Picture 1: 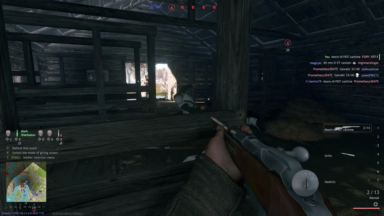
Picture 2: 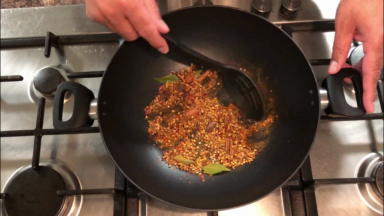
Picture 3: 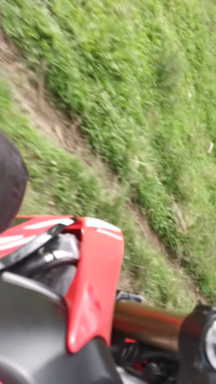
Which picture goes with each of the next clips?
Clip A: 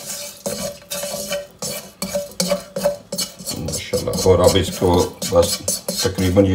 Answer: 2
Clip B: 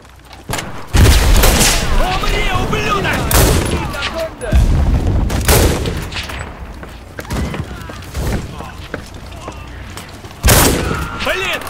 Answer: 1